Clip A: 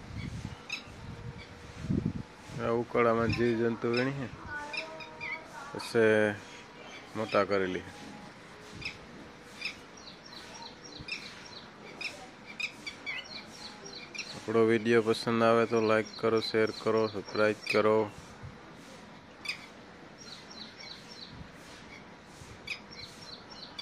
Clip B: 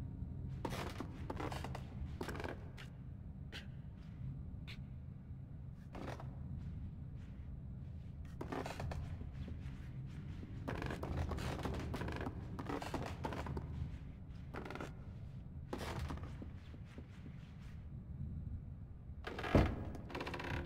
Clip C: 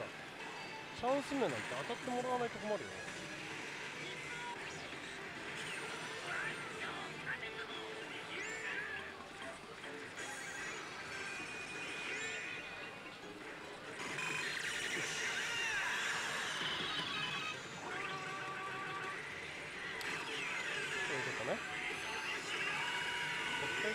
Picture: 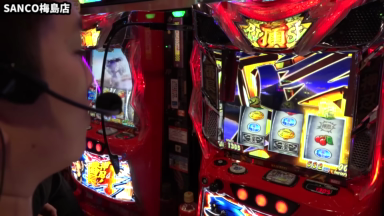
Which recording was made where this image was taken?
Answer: C